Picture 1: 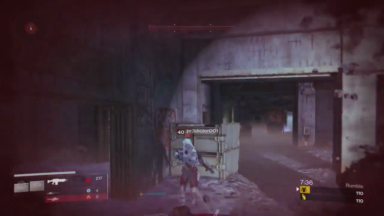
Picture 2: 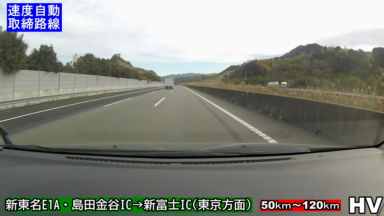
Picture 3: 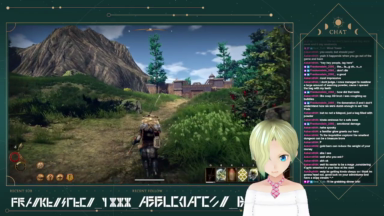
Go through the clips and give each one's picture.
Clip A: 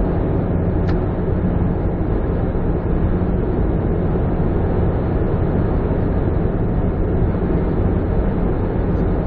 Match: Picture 2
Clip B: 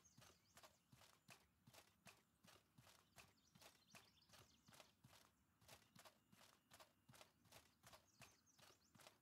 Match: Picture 3